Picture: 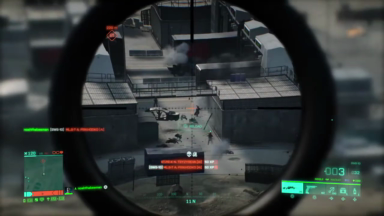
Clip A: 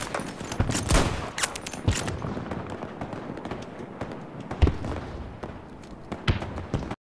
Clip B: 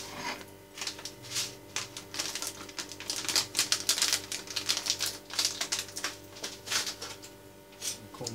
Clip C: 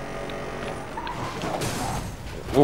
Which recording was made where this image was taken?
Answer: A